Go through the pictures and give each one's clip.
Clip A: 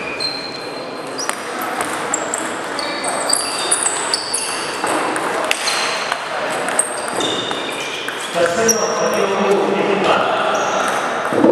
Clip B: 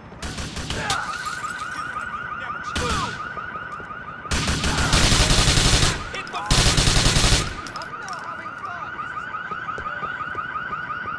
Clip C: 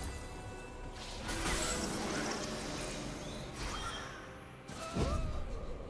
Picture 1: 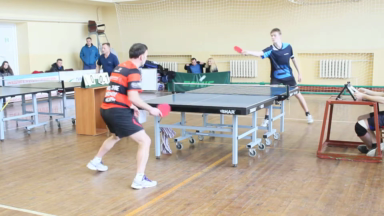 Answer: A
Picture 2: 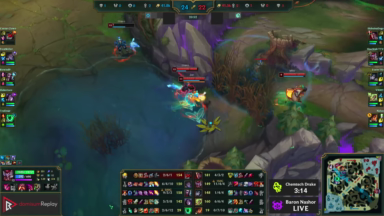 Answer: C